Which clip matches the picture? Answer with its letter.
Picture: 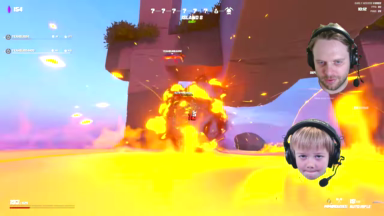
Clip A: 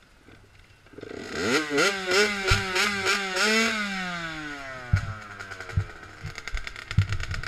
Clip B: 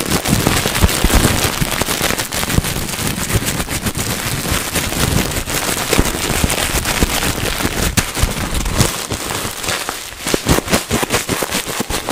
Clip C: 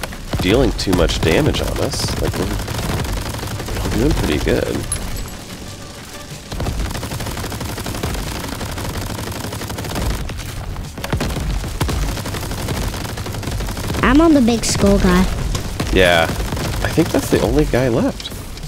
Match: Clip C